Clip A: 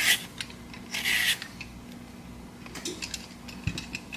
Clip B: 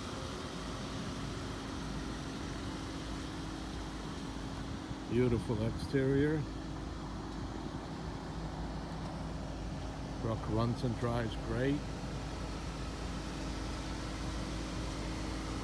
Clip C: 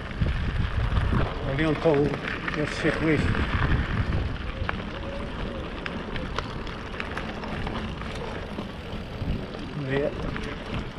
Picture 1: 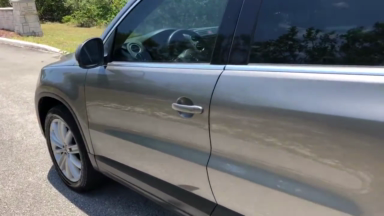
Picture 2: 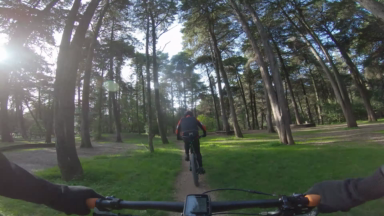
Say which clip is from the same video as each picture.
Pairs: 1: B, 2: C